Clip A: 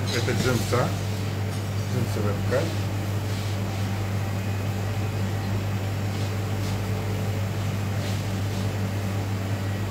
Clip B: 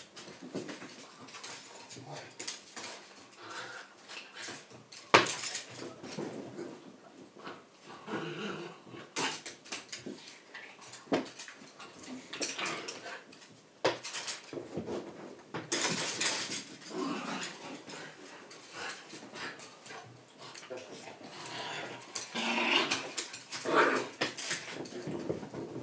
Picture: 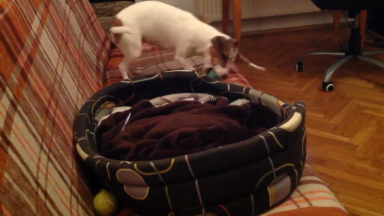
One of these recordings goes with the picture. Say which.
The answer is B